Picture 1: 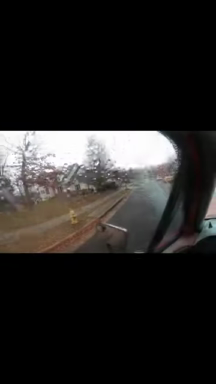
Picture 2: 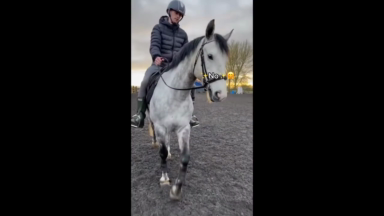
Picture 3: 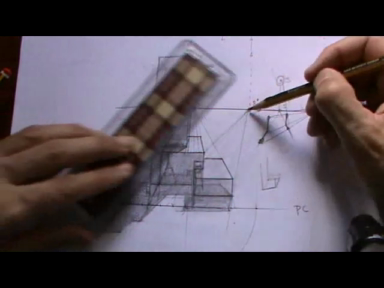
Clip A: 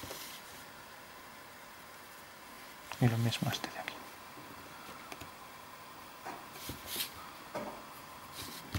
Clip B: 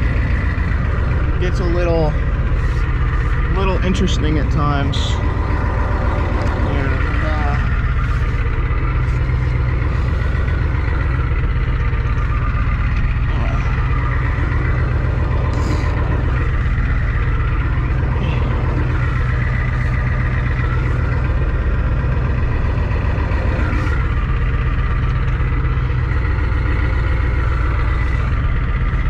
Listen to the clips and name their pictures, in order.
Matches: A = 3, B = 1